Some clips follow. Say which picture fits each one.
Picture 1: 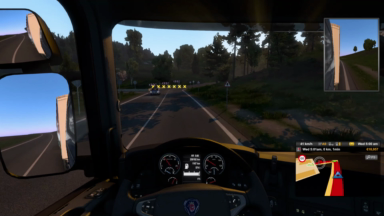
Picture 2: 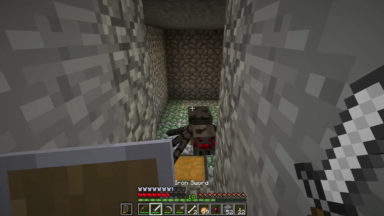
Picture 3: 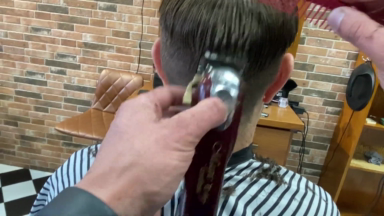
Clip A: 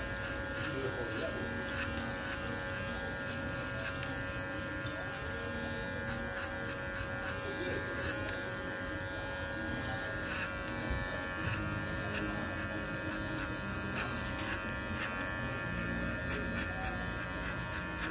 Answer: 3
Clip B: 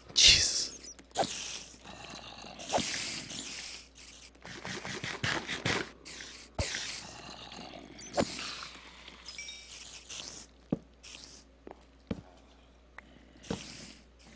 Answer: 2